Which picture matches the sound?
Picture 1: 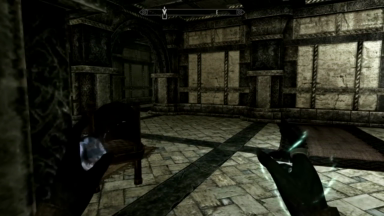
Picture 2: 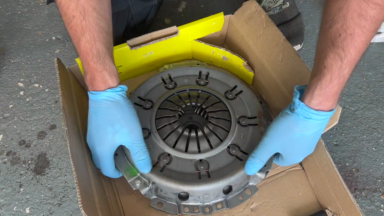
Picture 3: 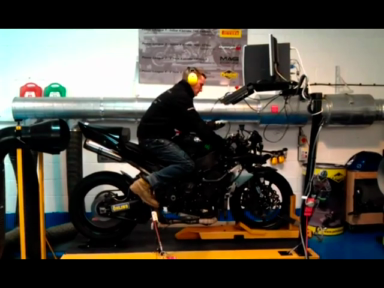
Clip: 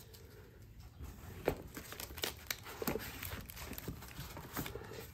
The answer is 2